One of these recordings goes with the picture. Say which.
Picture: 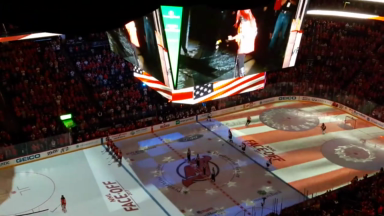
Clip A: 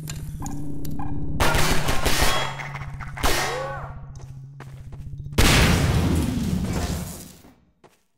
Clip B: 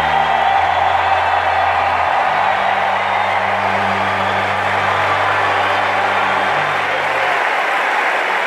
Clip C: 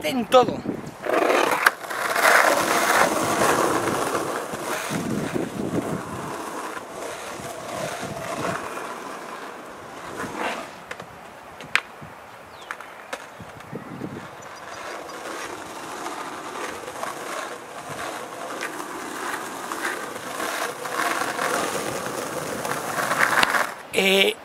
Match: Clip B